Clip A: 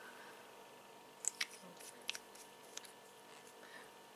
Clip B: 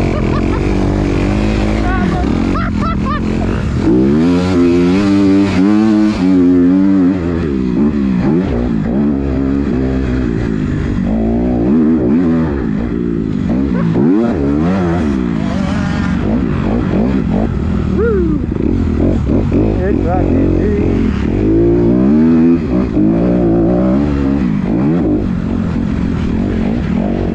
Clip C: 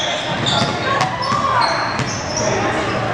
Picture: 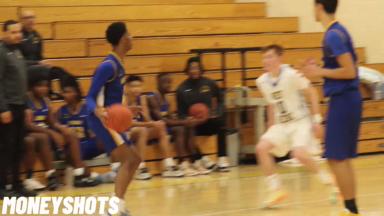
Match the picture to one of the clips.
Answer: C